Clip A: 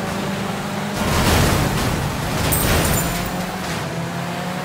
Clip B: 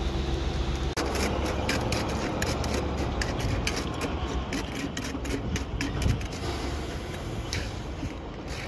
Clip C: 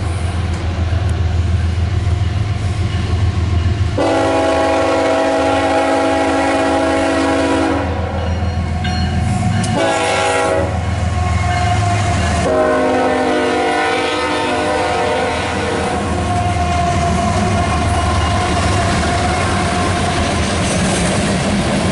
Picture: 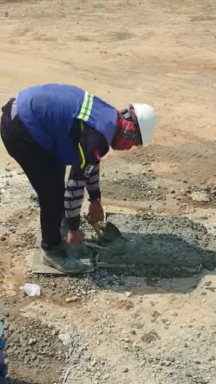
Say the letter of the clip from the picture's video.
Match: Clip B